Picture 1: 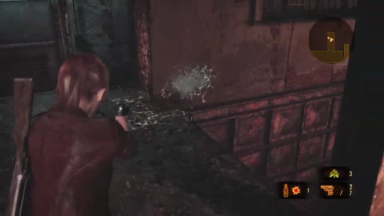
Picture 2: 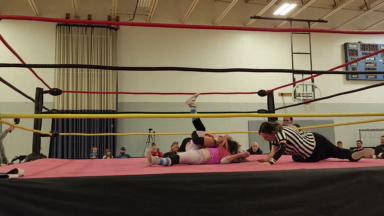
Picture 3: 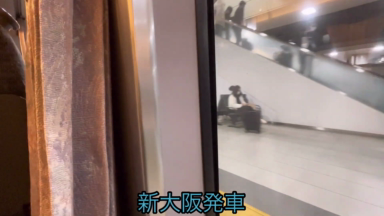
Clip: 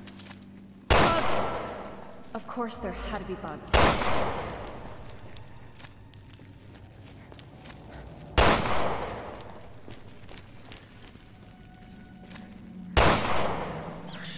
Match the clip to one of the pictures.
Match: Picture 1